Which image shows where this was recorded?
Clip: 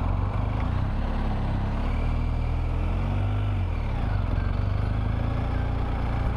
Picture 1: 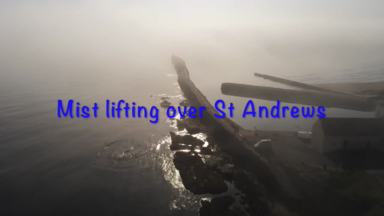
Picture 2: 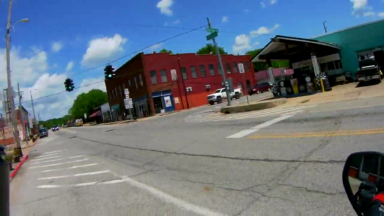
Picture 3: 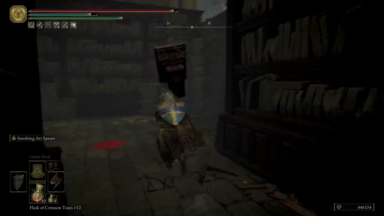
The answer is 2